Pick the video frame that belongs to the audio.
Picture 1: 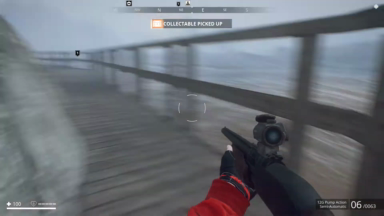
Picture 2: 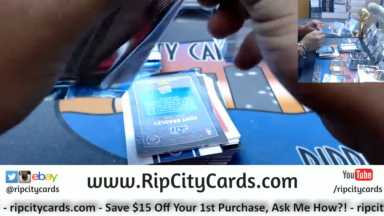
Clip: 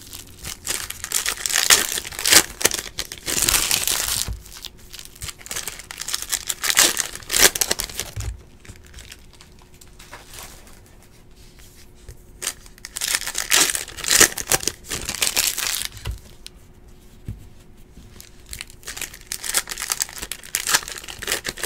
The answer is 2